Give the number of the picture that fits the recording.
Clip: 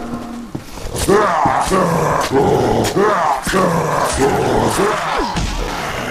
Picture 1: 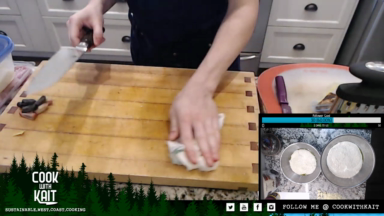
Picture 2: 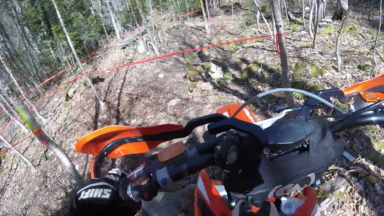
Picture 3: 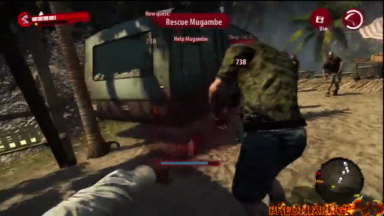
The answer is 3